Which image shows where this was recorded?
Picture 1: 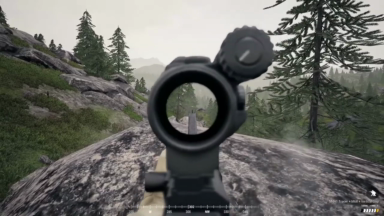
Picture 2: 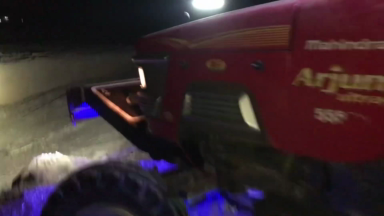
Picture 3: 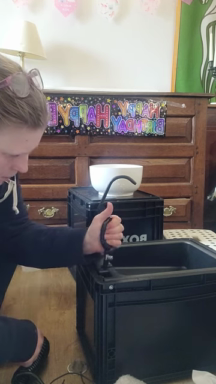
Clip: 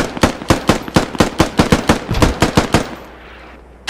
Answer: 1